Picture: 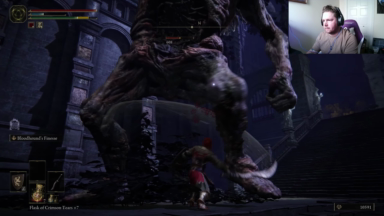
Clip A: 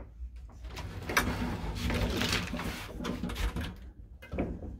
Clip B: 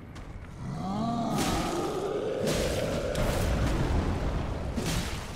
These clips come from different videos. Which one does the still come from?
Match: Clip B